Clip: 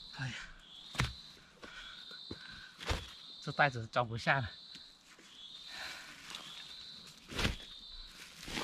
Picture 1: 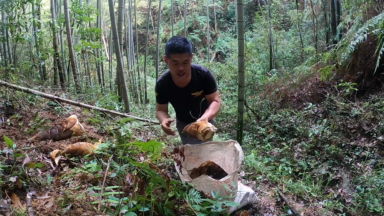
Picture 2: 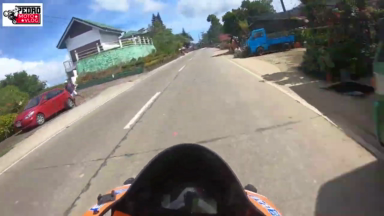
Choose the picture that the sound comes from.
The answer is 1